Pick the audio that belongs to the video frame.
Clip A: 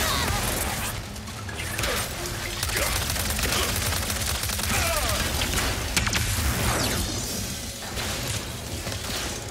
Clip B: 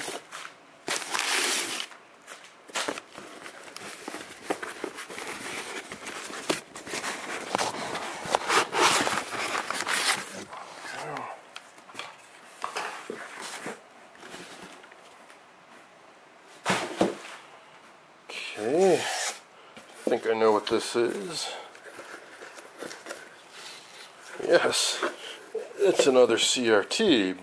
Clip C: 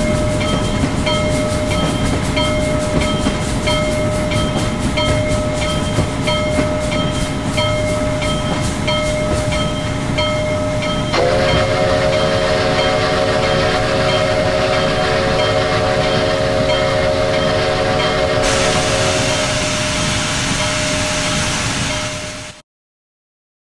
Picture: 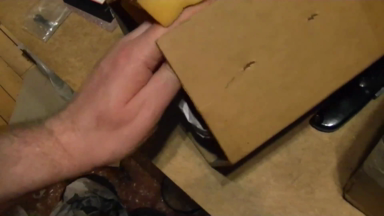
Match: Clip B